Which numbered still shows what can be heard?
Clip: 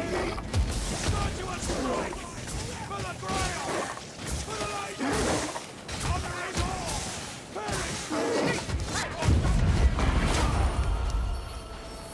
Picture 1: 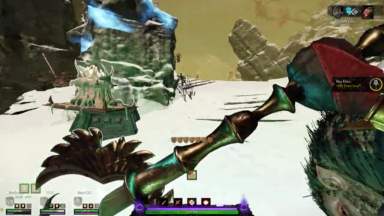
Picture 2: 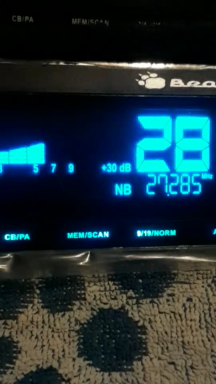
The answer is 1